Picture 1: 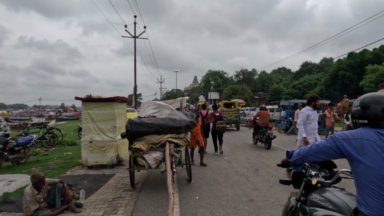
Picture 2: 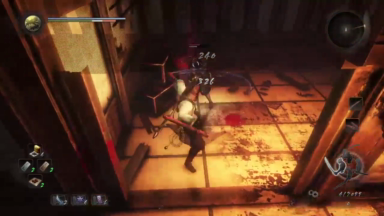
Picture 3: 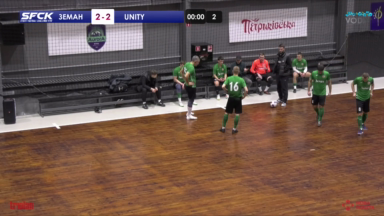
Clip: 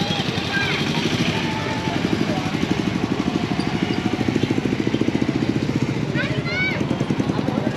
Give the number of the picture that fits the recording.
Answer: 1